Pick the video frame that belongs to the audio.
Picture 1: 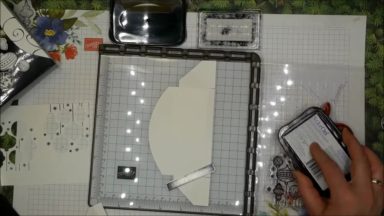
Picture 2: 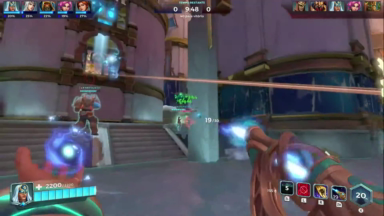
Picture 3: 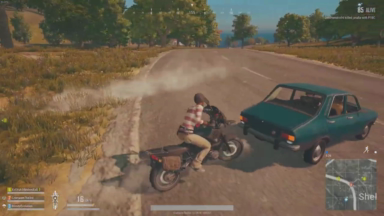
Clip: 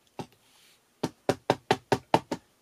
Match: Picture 1